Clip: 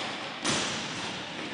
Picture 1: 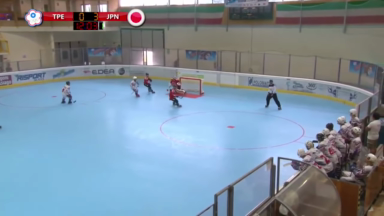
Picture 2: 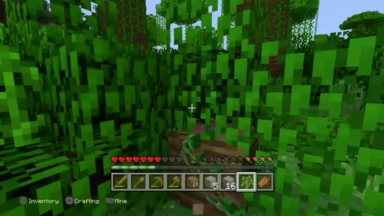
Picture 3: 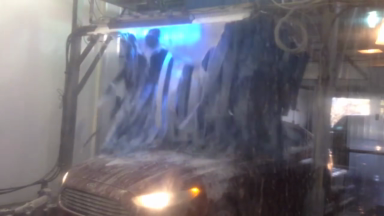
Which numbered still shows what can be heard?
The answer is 1